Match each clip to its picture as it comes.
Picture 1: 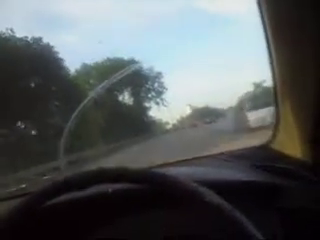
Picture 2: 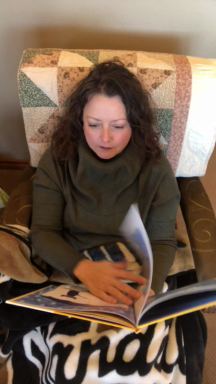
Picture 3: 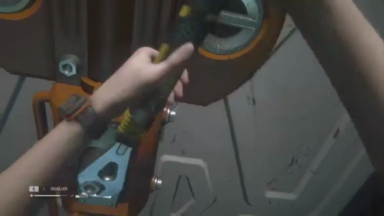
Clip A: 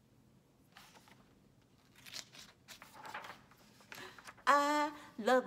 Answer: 2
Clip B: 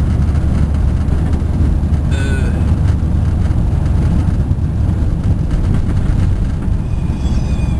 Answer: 1